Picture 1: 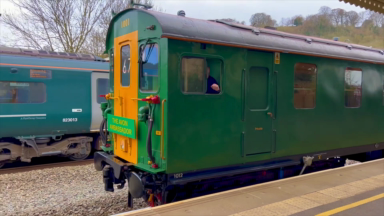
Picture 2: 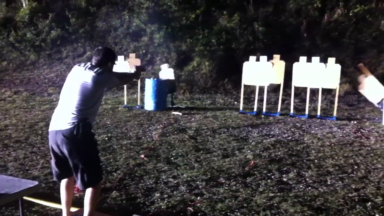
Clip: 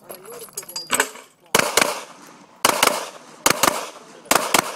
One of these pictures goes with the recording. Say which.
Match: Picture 2